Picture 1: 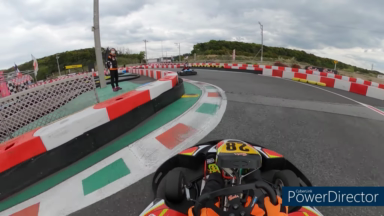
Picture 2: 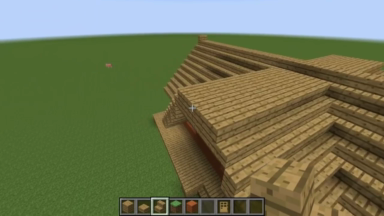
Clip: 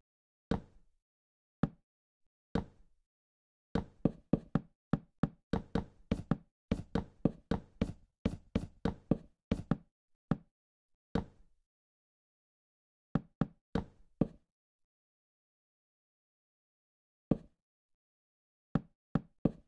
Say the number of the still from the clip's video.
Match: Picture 2